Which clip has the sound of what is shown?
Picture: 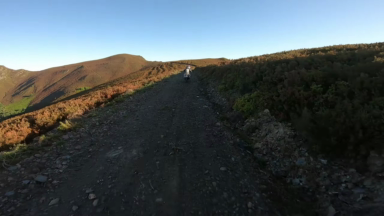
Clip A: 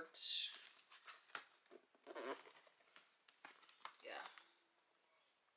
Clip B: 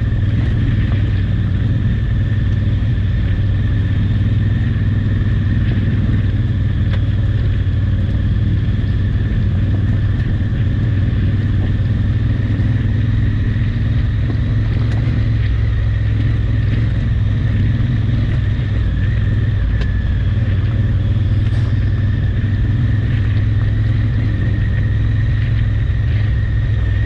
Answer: B